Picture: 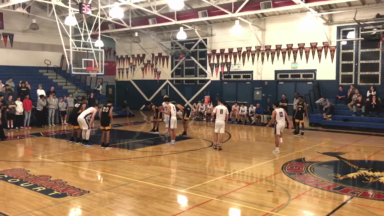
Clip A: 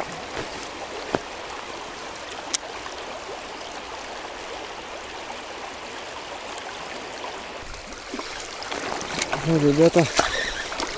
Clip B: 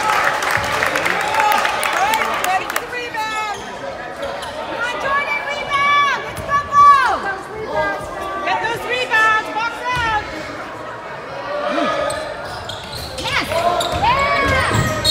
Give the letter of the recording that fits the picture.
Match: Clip B